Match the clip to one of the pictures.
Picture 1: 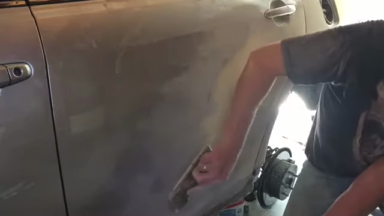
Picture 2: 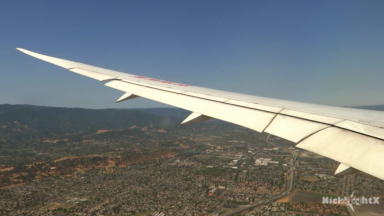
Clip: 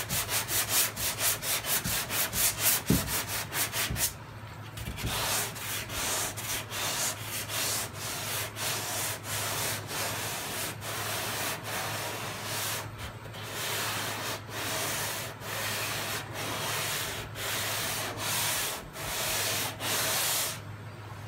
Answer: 1